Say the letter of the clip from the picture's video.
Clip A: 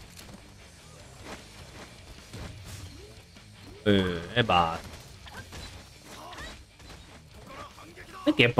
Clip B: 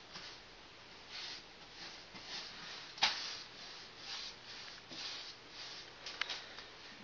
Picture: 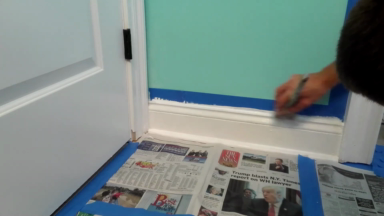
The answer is B